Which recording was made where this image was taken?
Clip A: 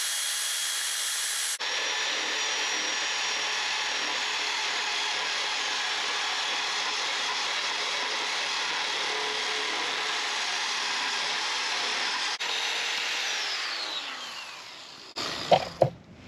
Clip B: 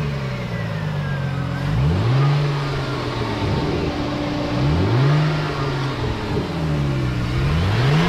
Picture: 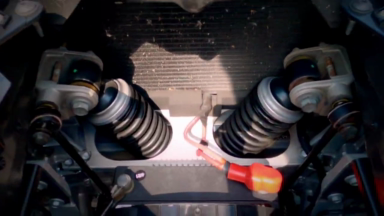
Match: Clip B